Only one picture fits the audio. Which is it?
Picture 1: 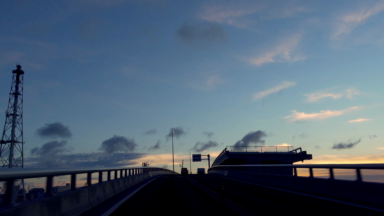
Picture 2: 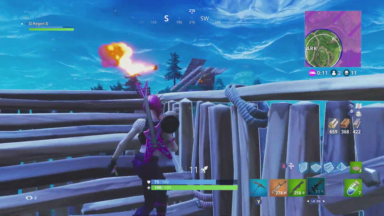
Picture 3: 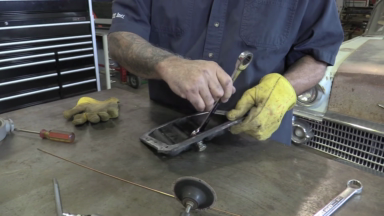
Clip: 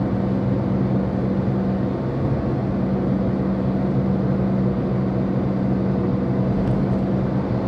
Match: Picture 1